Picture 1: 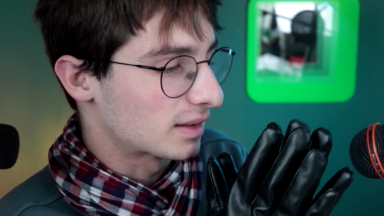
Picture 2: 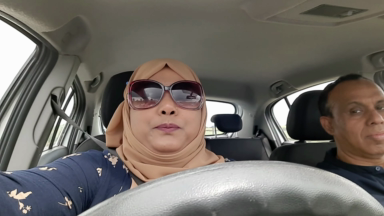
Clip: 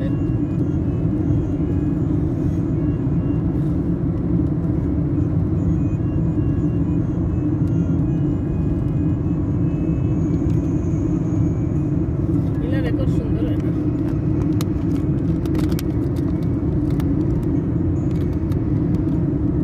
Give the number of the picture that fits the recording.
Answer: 2